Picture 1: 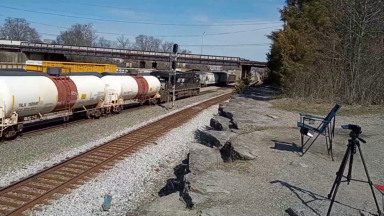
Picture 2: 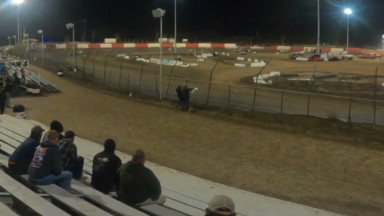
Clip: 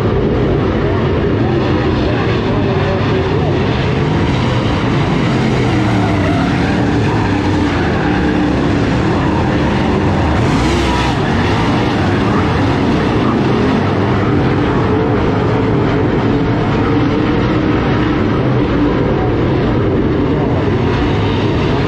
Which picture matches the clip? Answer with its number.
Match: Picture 2